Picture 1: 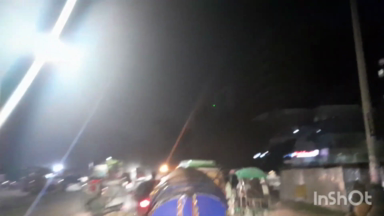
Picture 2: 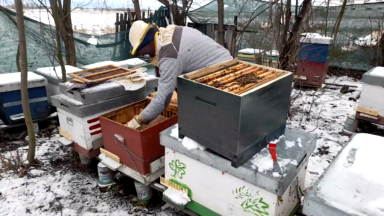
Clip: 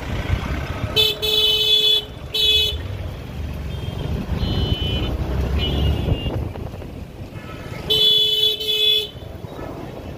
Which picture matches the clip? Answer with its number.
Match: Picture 1